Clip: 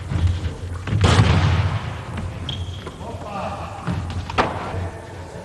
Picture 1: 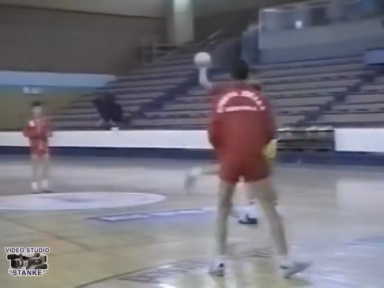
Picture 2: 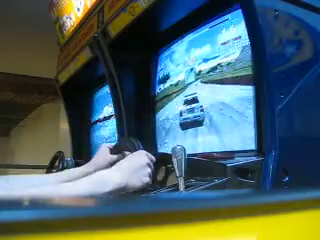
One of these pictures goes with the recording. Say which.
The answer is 1